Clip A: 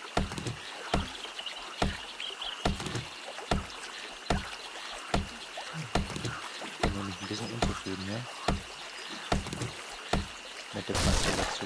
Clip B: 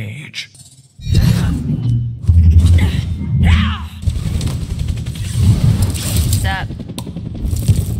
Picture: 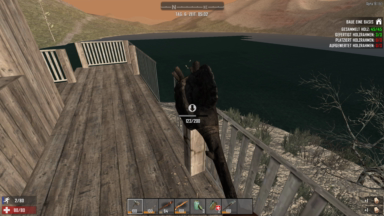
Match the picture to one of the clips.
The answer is A